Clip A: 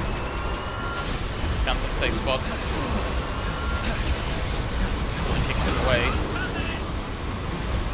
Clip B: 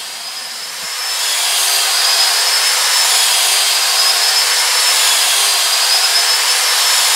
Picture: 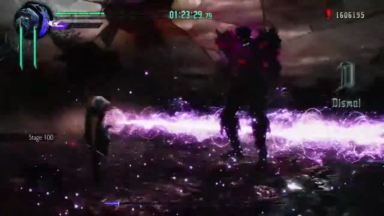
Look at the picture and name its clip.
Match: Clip A